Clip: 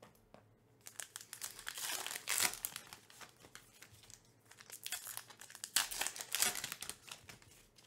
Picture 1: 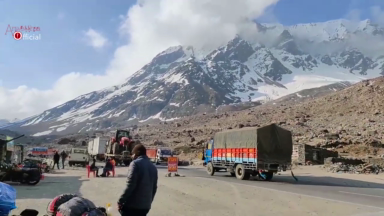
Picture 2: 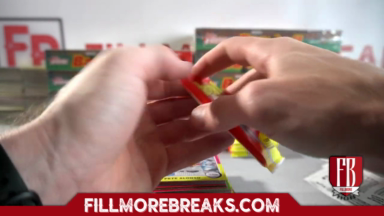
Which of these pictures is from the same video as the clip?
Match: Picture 2